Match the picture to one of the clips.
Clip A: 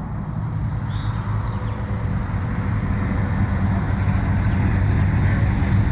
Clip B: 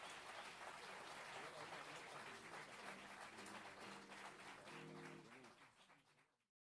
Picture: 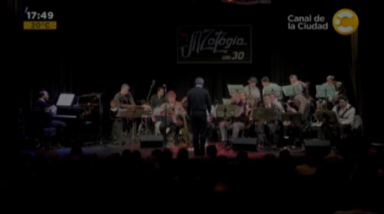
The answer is B